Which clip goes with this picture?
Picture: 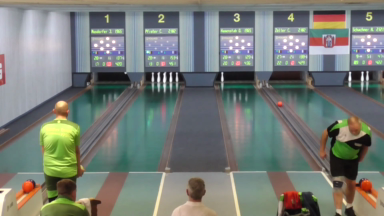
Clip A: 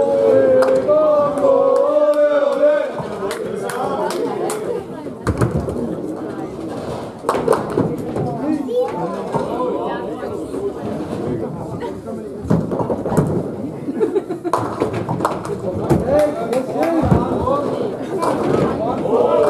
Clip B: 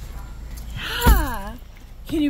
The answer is A